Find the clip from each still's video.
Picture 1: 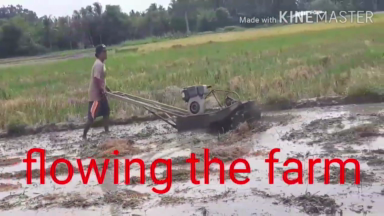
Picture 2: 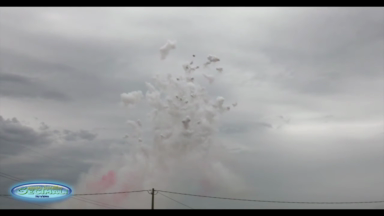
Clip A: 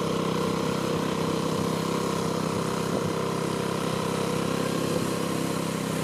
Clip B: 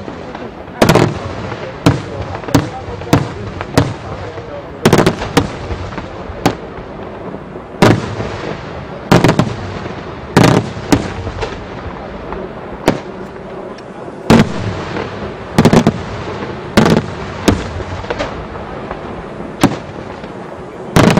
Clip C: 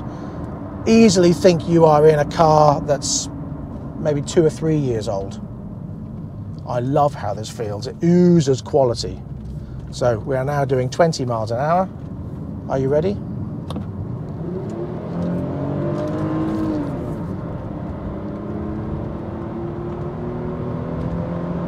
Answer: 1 A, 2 B